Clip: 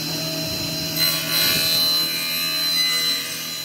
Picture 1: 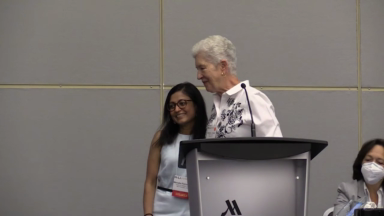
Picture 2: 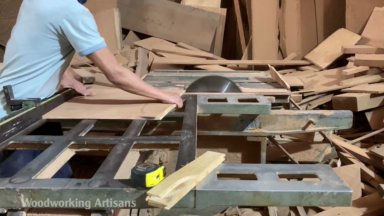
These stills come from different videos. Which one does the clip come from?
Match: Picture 2